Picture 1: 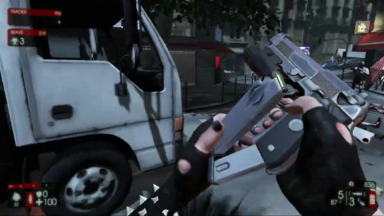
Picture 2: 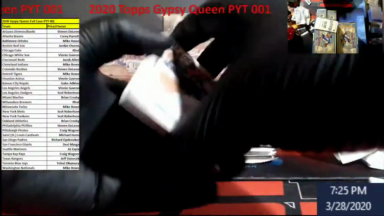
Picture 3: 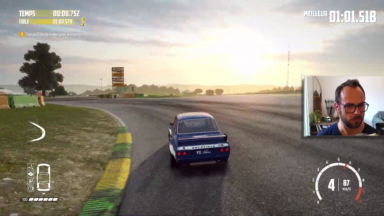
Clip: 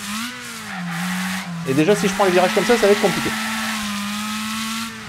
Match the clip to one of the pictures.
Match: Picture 3